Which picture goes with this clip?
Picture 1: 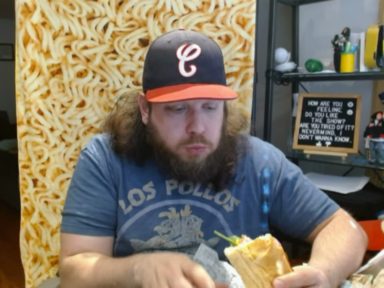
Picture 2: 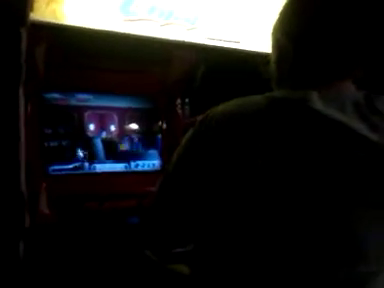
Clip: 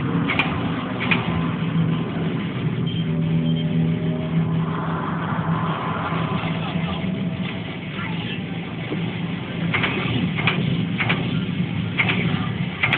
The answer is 2